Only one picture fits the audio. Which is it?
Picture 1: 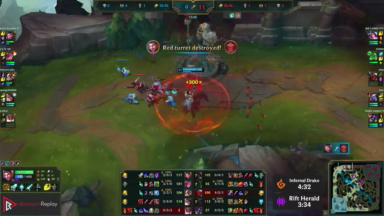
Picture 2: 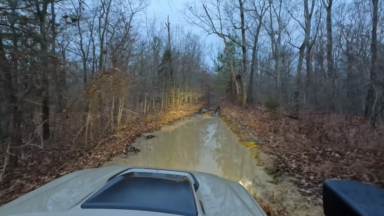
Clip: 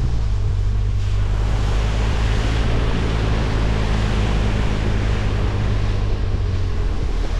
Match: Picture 2